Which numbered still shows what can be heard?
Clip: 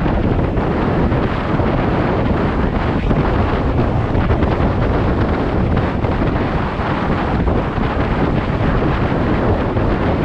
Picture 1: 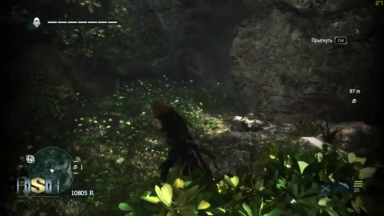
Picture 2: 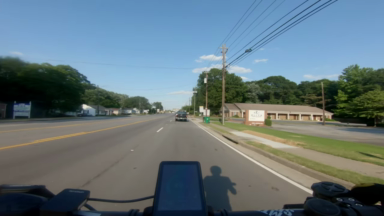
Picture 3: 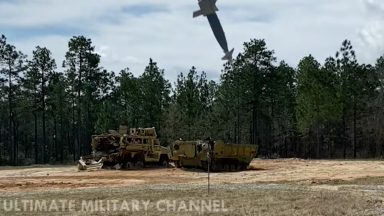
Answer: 2